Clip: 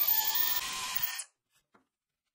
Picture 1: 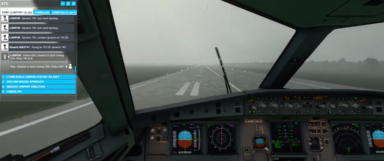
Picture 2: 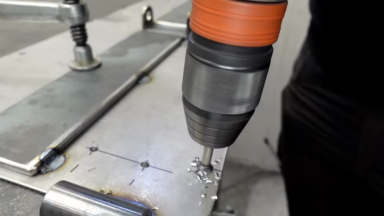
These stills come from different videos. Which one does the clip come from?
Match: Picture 2